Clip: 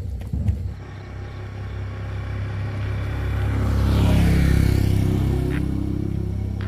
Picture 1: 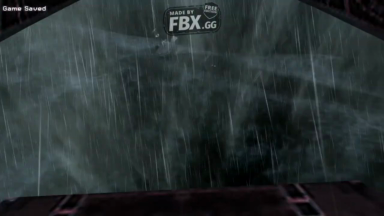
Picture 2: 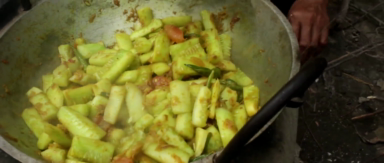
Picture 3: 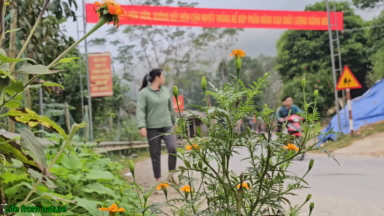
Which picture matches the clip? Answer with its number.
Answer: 3